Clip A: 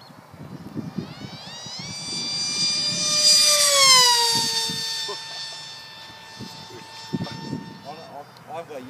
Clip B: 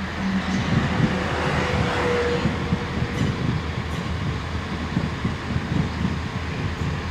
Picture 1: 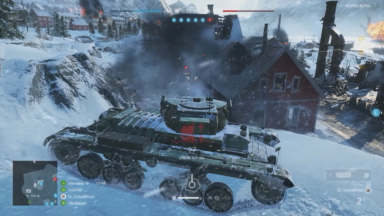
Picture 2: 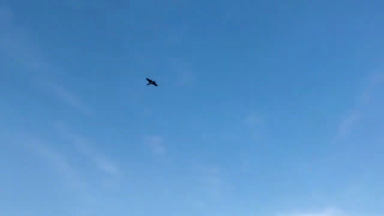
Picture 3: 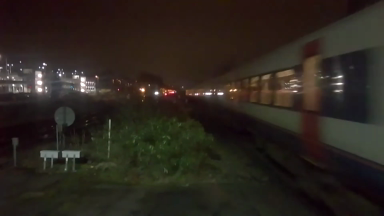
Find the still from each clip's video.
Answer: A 2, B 3